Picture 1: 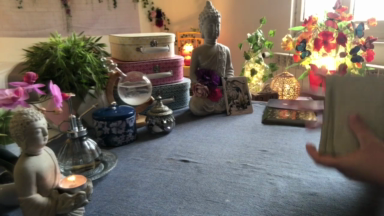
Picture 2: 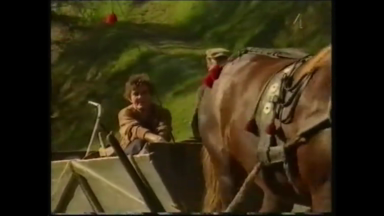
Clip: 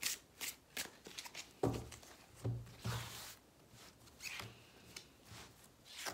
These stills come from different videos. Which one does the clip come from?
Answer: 1